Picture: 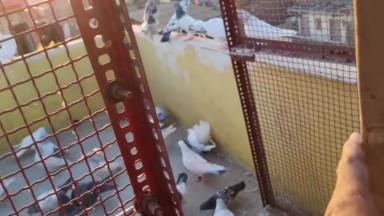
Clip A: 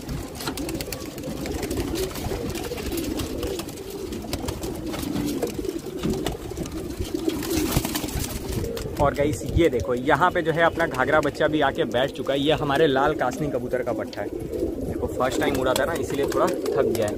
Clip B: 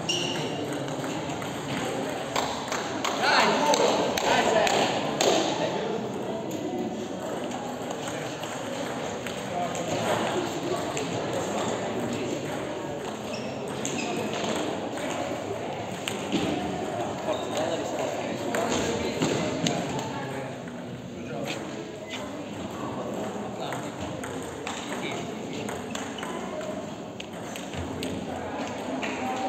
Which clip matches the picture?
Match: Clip A